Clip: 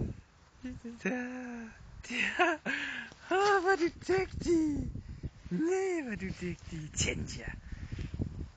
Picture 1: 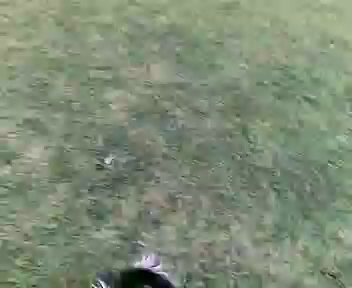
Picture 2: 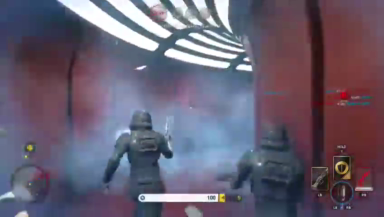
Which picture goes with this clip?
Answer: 1